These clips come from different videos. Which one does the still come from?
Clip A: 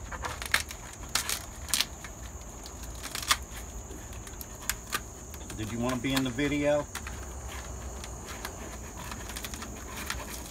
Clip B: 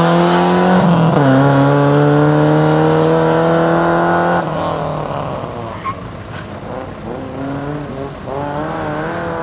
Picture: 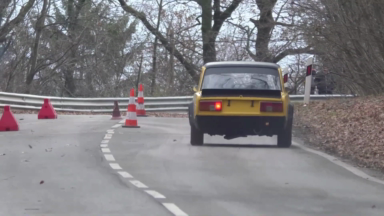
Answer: B